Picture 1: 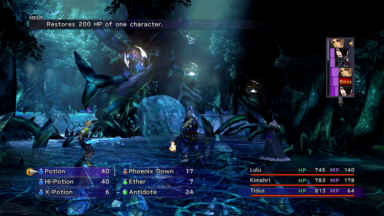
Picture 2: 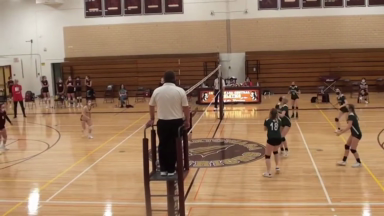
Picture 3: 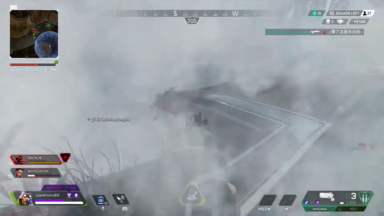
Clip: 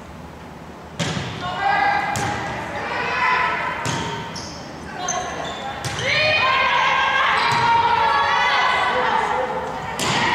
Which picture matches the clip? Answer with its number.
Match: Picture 2